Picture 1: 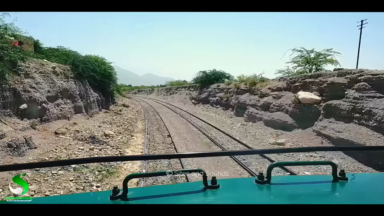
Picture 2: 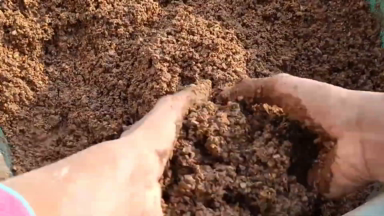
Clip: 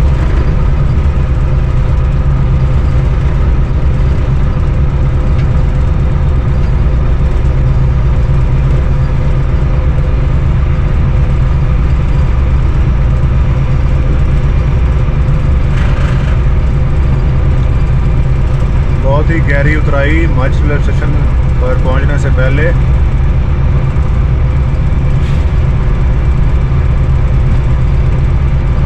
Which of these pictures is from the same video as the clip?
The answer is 1